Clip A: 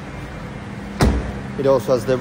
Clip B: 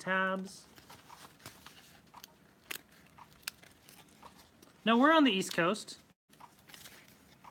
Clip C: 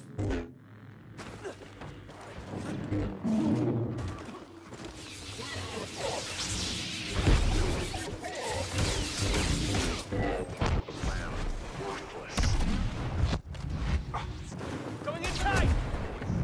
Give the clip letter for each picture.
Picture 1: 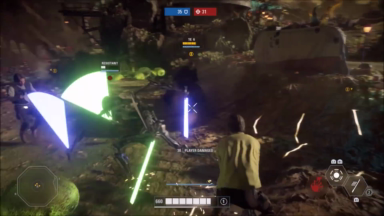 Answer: C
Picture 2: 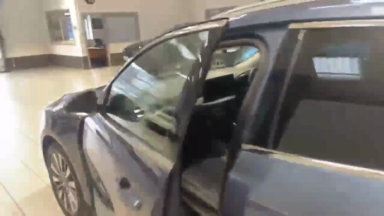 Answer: A